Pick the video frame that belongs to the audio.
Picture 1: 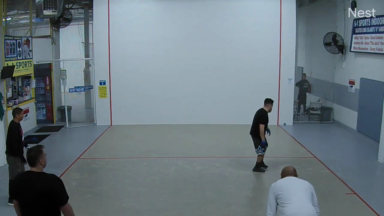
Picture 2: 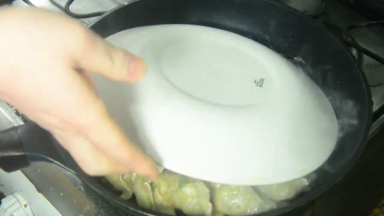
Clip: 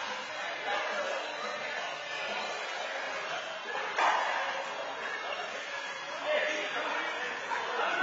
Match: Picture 1